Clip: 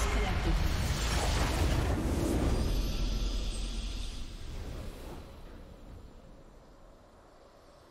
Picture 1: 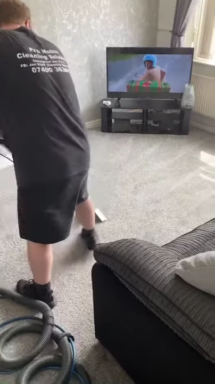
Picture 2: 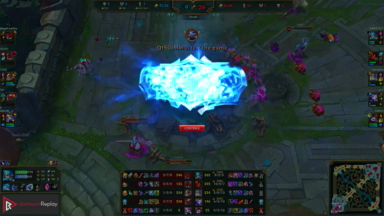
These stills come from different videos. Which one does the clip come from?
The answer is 2